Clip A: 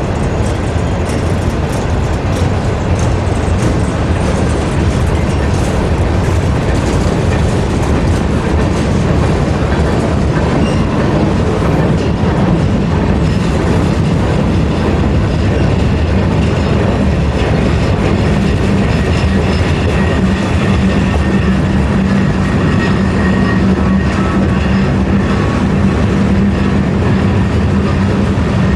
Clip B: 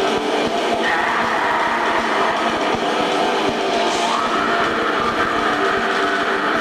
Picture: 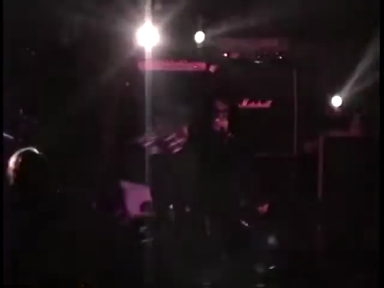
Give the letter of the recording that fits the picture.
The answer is B